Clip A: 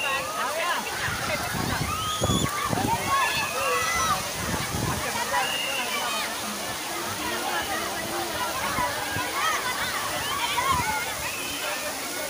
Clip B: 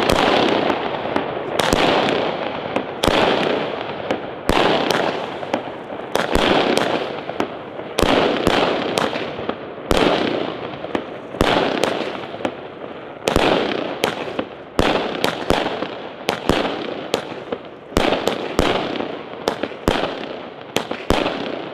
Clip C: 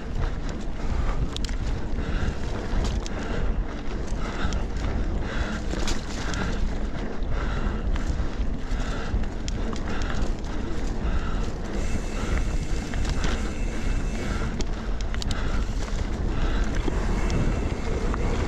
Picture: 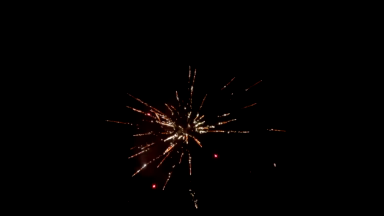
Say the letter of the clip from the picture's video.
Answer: B